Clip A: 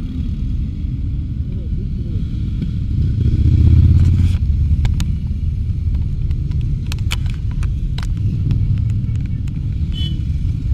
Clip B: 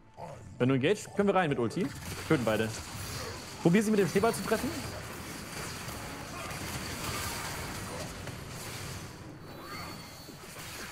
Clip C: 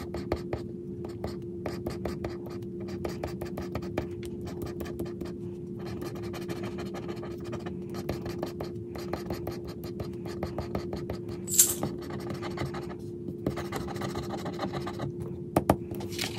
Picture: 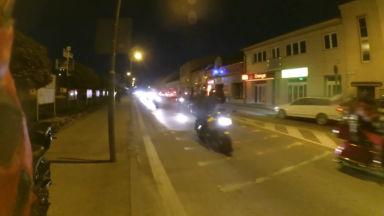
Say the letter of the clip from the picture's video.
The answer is A